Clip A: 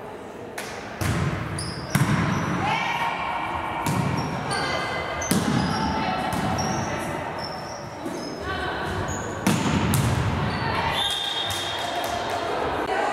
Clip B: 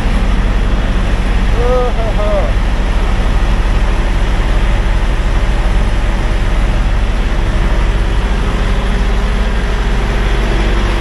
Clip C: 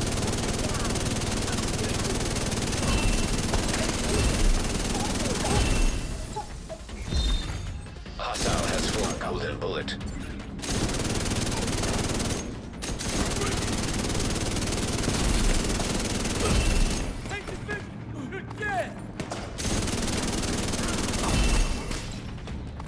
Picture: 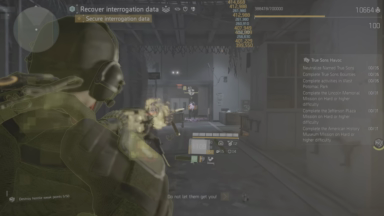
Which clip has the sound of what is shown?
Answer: C